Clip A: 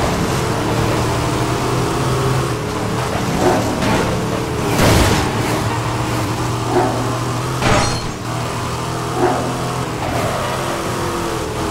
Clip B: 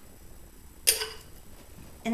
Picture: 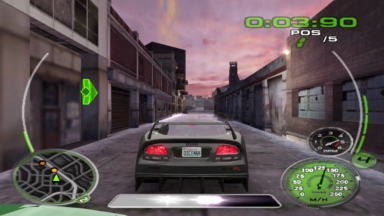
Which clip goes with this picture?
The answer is A